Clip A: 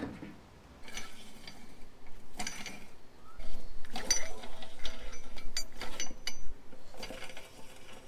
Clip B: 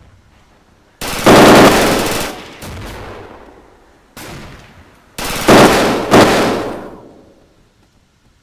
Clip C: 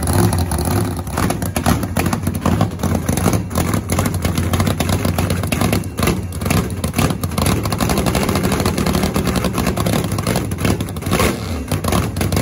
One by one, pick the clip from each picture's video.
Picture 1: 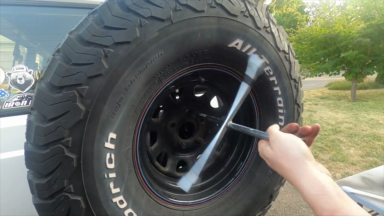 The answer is A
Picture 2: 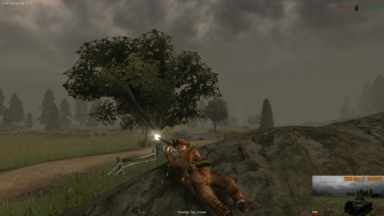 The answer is B